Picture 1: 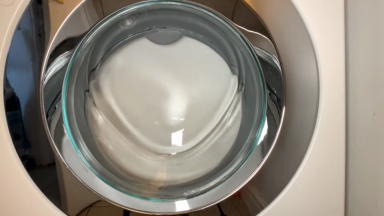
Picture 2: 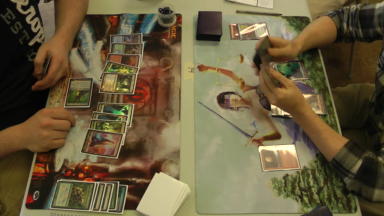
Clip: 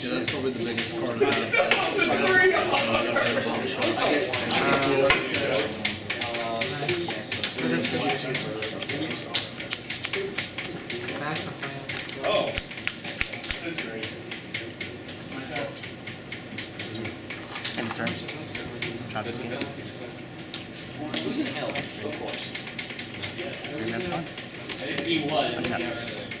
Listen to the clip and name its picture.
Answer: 2